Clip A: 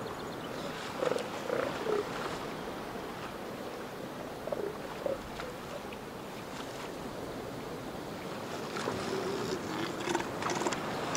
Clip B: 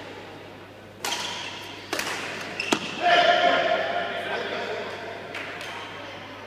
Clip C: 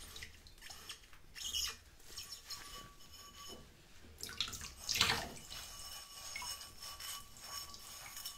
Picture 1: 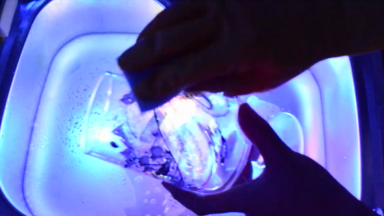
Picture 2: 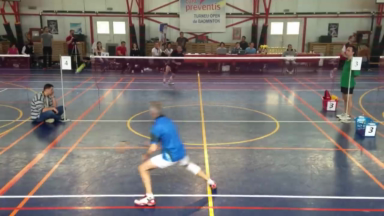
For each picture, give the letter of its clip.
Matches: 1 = C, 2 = B